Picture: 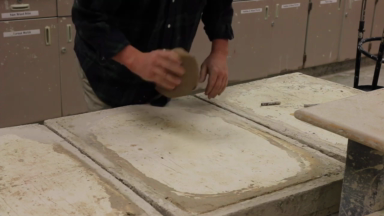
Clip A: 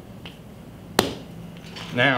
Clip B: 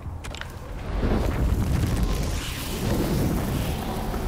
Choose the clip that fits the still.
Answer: A